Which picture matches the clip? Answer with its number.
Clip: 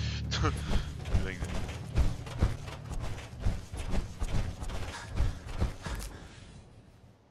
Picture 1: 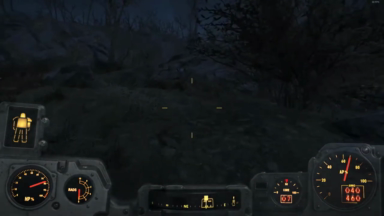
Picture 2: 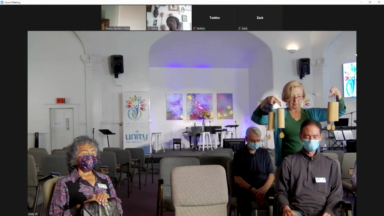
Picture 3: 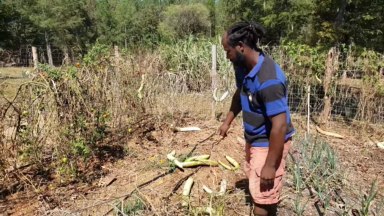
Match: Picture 1